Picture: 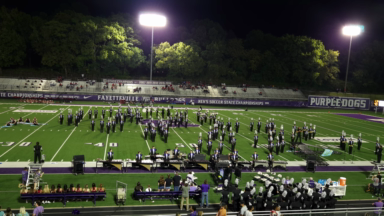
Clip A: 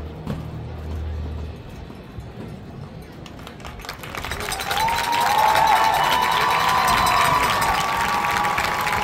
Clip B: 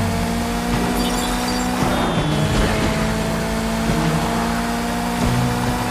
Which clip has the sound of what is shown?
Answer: A